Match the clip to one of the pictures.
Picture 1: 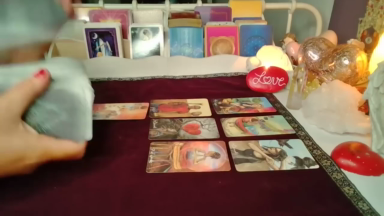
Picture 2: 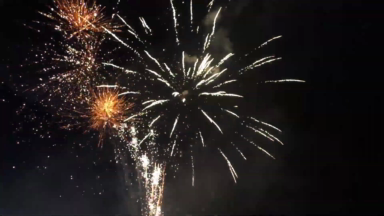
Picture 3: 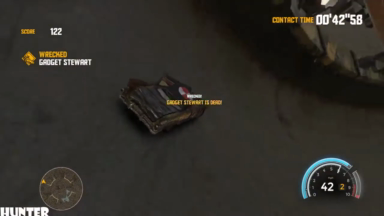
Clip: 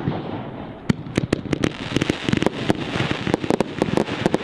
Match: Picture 2